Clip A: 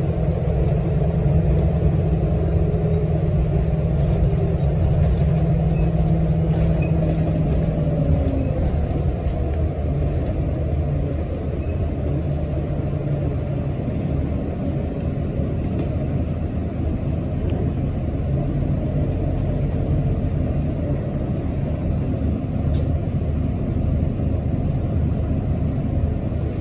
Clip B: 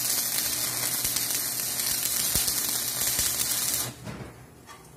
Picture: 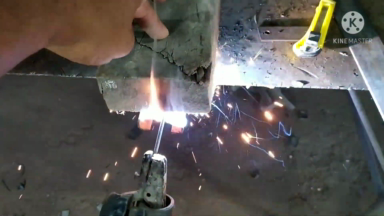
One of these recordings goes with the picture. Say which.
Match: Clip B